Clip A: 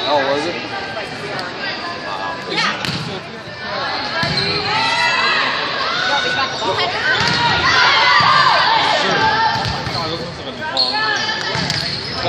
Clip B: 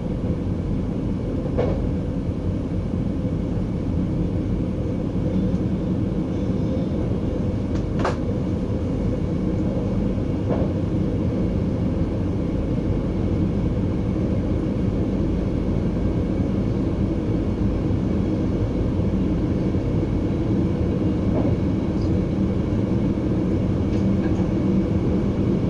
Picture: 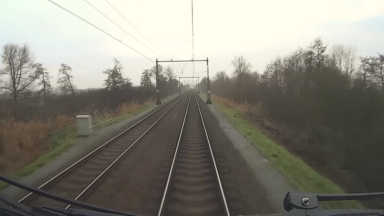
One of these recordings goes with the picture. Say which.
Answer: B